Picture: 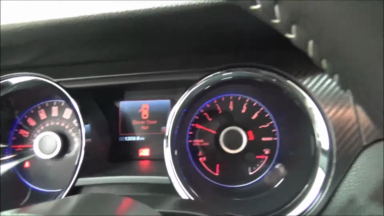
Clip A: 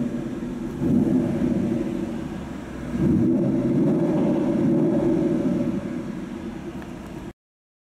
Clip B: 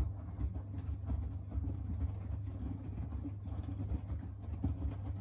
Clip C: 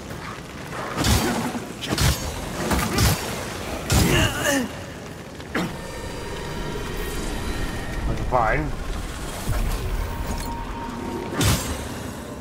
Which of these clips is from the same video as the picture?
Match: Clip A